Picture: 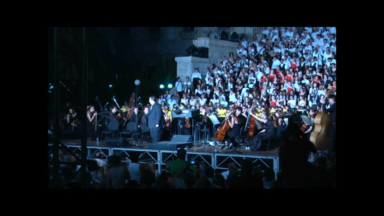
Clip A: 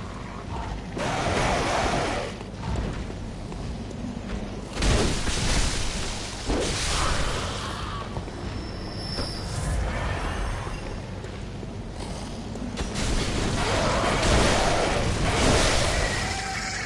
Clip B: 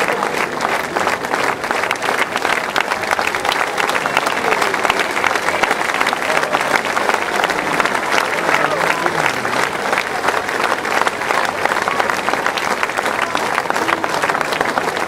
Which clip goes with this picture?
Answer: B